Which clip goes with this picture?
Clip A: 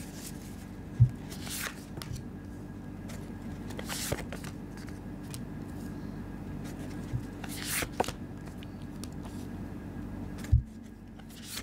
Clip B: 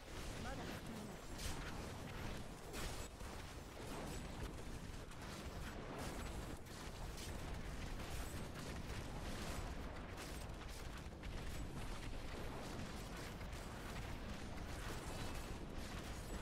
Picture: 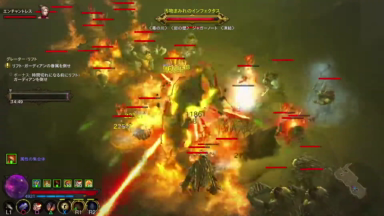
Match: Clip B